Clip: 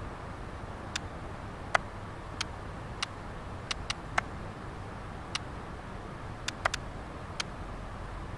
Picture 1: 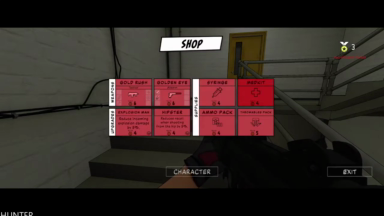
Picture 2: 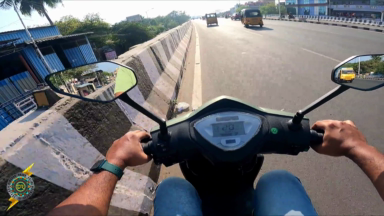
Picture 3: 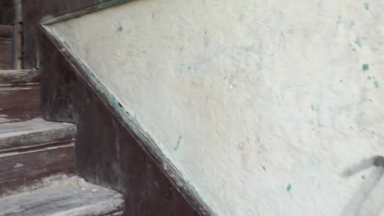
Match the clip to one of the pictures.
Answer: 1